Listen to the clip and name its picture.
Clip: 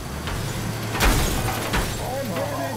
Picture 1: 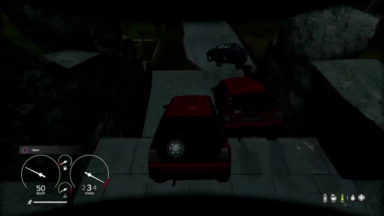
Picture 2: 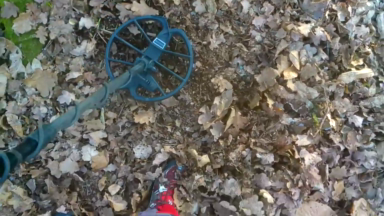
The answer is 1